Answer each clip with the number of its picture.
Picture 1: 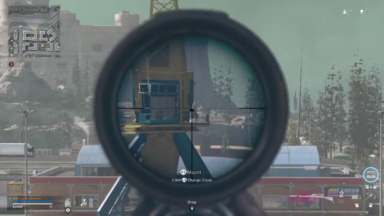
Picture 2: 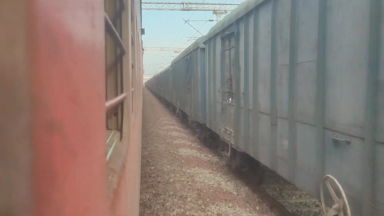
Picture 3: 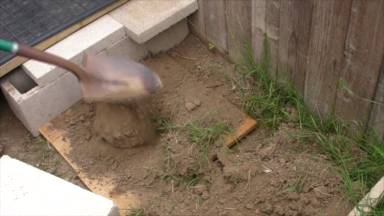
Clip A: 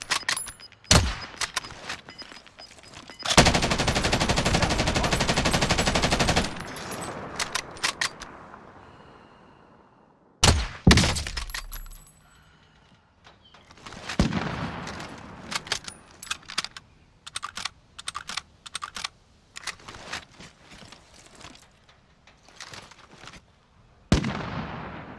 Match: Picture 1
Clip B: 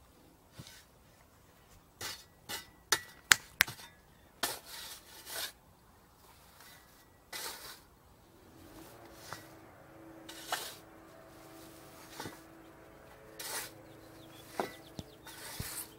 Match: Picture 3